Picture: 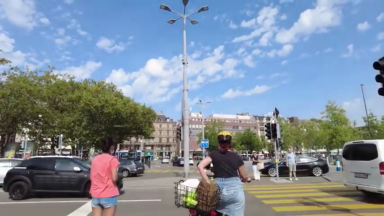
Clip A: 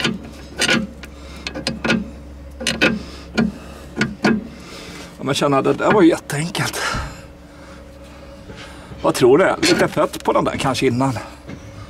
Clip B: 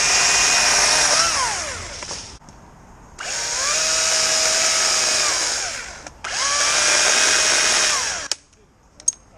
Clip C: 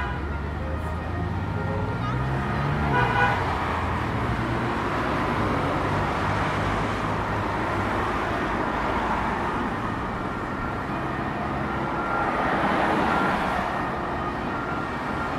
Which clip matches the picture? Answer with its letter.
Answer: C